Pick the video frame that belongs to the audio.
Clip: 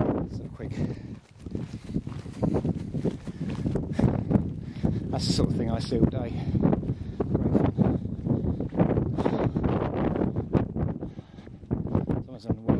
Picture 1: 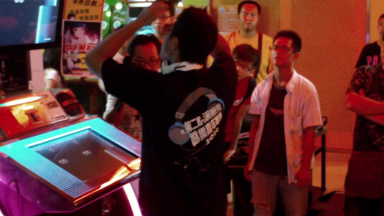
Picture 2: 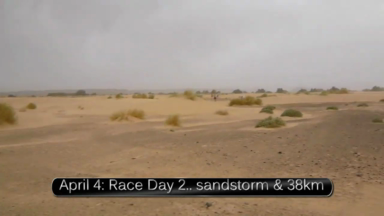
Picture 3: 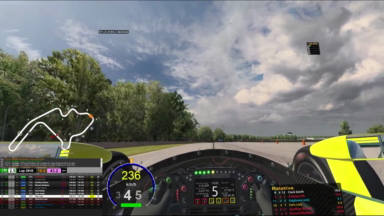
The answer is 2